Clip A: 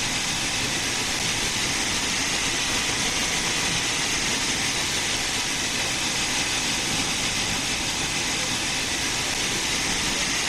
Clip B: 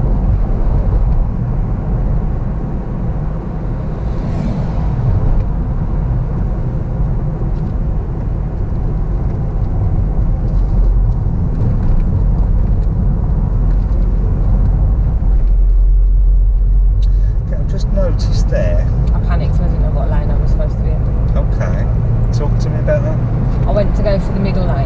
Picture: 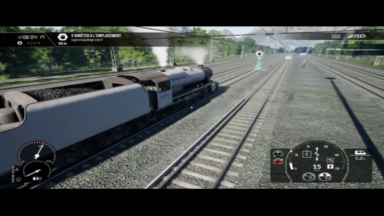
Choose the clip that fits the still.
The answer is A